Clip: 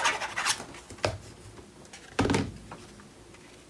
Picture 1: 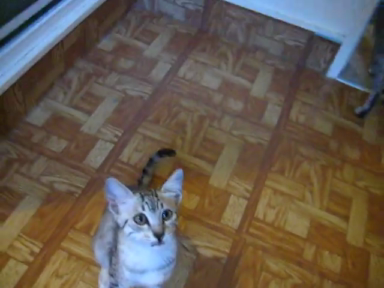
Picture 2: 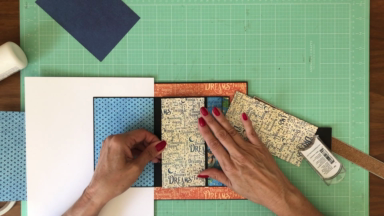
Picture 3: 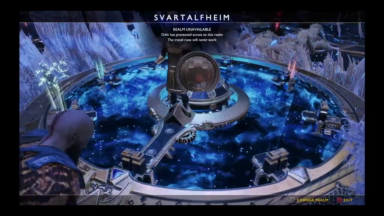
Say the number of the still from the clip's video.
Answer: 2